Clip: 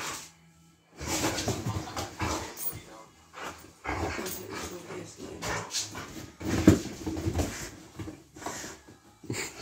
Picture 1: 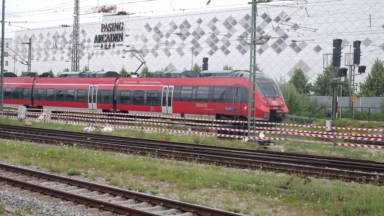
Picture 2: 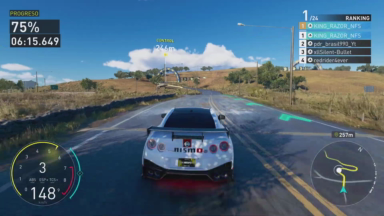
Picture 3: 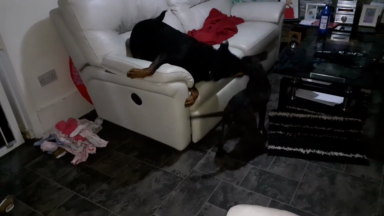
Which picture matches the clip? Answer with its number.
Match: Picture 3